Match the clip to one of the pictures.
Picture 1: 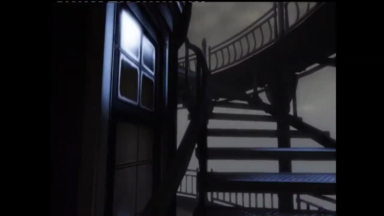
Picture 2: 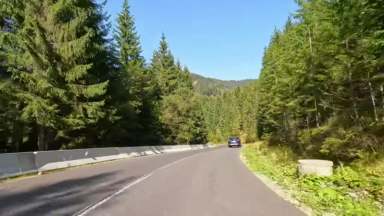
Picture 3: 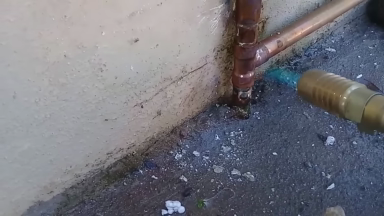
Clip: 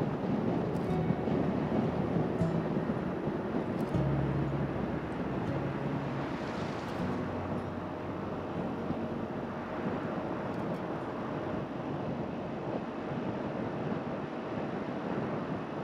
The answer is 2